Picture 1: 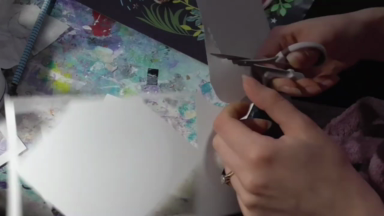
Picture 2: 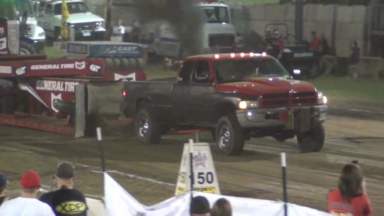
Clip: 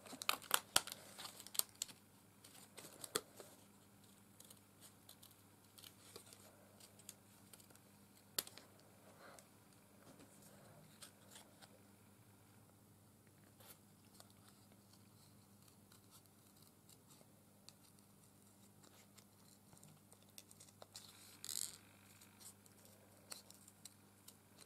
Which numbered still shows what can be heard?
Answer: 1